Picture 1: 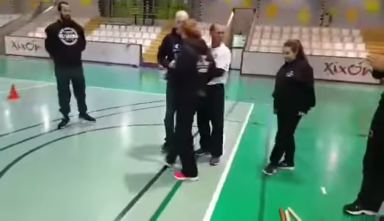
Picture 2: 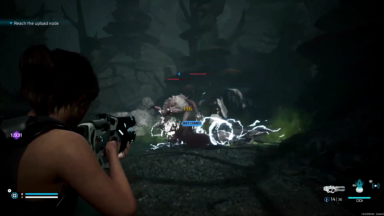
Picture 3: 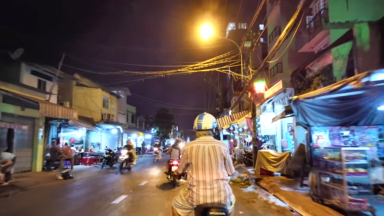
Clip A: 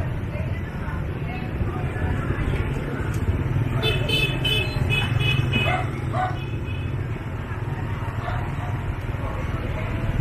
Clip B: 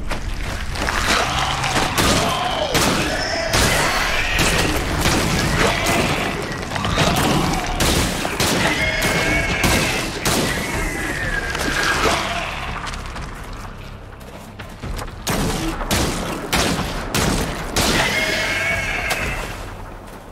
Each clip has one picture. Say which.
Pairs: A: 3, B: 2